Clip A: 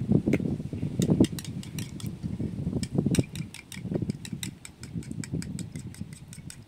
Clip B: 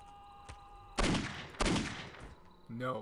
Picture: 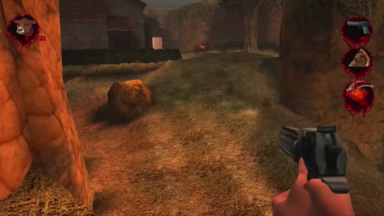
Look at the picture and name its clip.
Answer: B